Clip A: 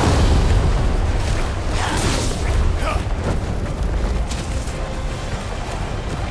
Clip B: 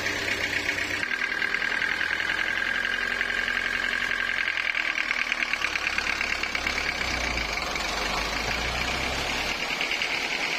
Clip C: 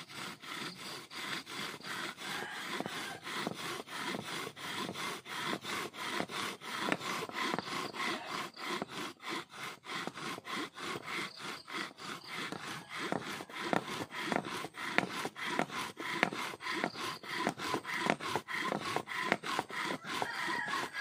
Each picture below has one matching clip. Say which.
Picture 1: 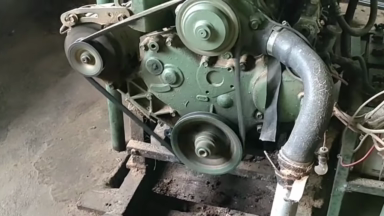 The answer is B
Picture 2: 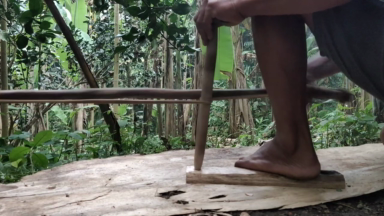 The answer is C